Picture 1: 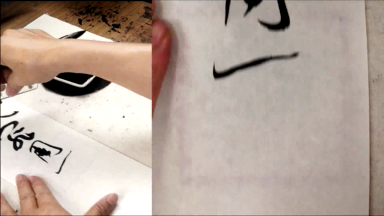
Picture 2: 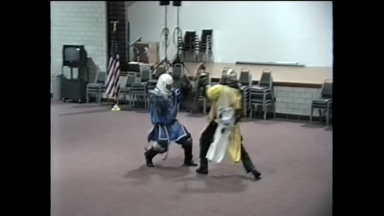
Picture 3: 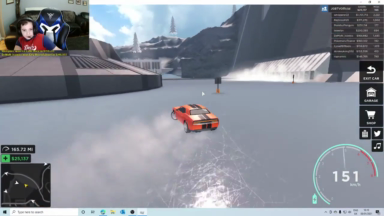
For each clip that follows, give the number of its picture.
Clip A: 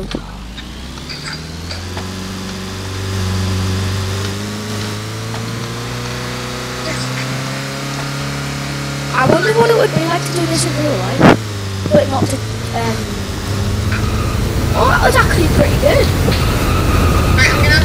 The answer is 3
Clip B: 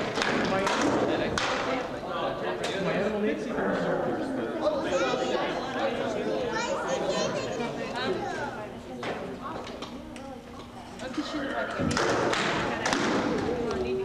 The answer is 2